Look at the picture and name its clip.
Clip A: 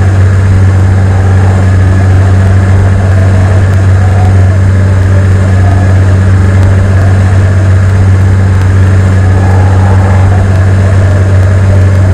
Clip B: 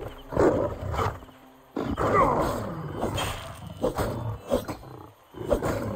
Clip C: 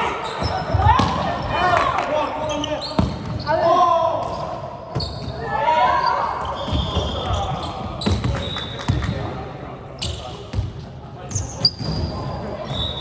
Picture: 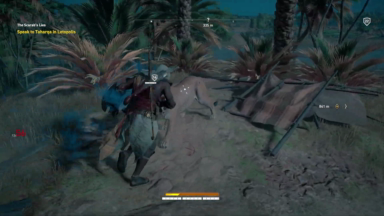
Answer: B